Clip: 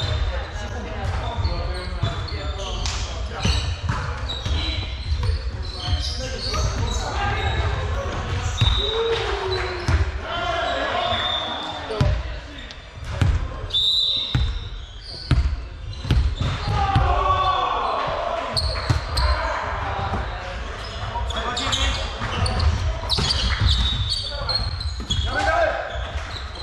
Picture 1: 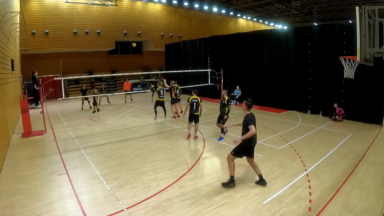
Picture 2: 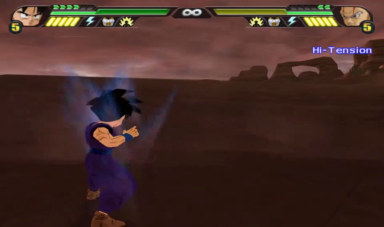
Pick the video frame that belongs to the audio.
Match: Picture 1